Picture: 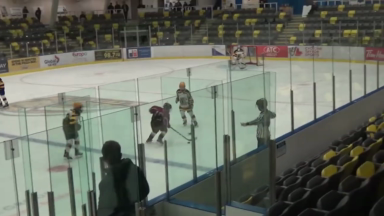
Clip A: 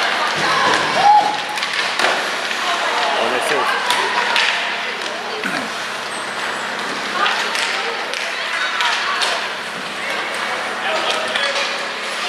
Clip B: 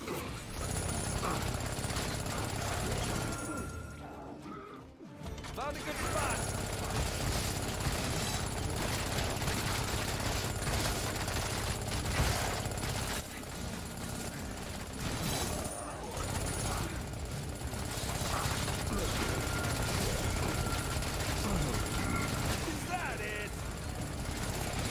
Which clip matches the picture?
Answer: A